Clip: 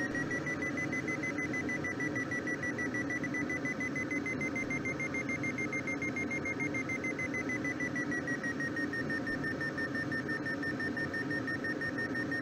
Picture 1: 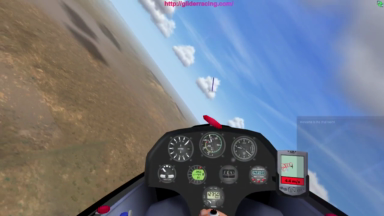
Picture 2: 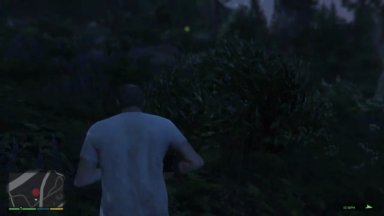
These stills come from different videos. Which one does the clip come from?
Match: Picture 1